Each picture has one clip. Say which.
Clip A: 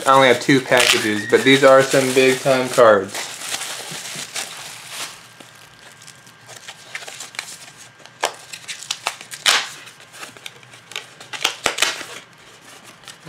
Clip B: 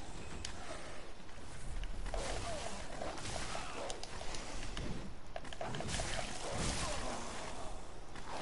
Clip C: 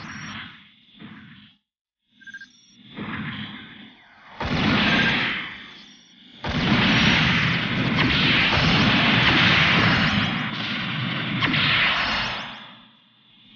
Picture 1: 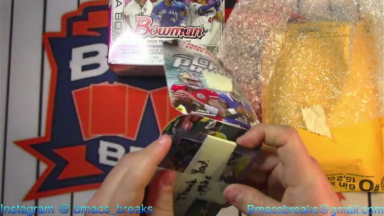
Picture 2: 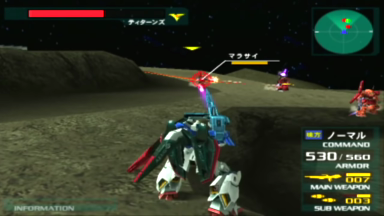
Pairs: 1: A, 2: C